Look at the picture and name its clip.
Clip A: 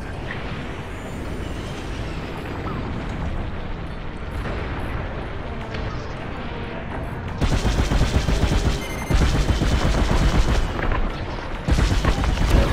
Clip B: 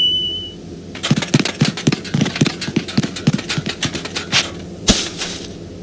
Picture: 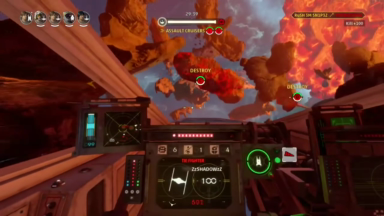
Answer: A